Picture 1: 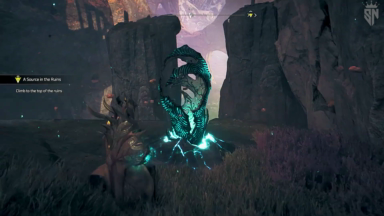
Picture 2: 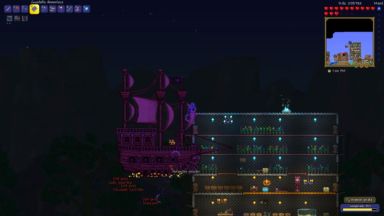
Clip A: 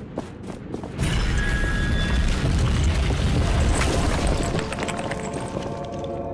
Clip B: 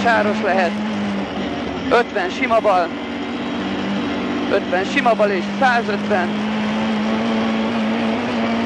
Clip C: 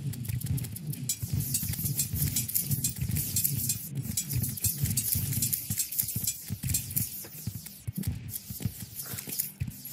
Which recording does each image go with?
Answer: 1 A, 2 C